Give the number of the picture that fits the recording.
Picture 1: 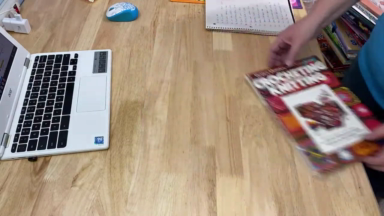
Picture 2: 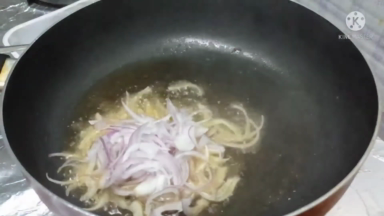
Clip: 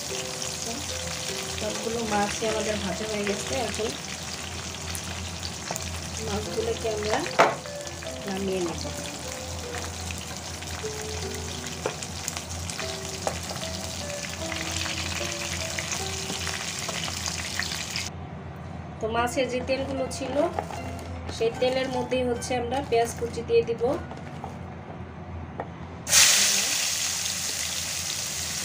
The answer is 2